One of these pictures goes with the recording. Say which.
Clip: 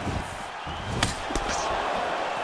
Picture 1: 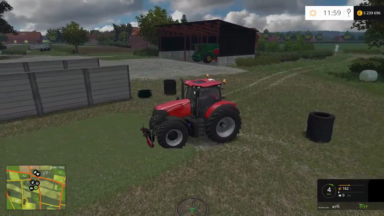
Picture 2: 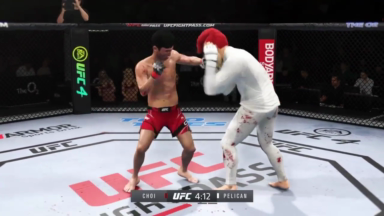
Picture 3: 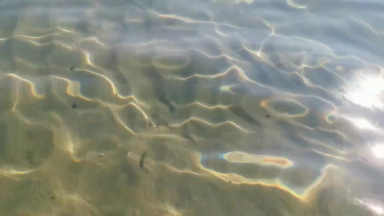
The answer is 2